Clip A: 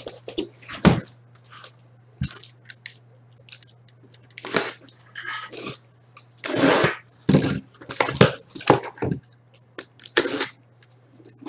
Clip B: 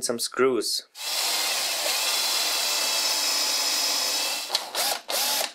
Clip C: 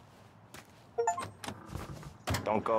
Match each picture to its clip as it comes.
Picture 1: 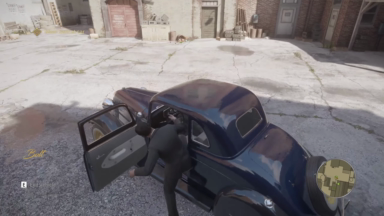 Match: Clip C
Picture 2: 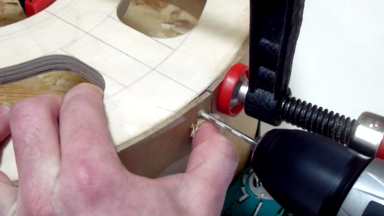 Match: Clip B